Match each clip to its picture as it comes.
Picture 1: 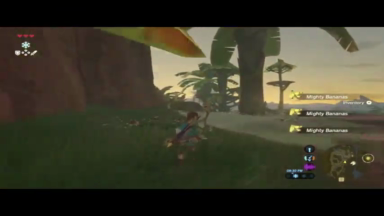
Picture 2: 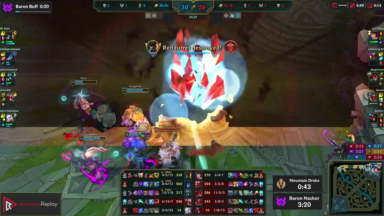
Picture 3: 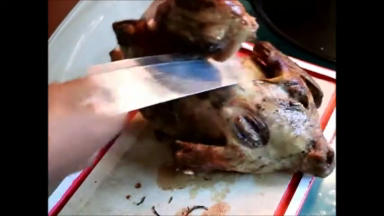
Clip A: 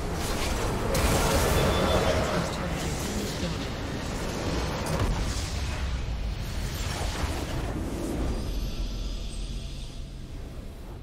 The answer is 2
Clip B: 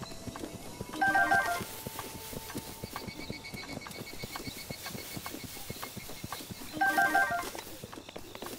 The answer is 1